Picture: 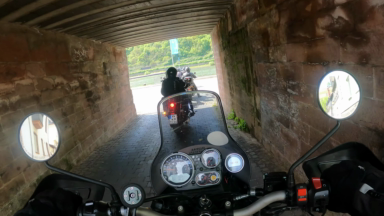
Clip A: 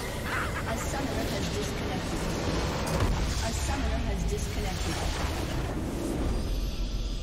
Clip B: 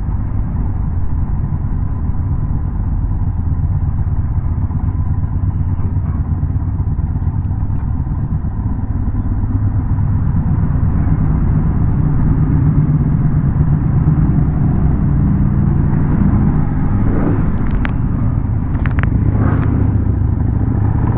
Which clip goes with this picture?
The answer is B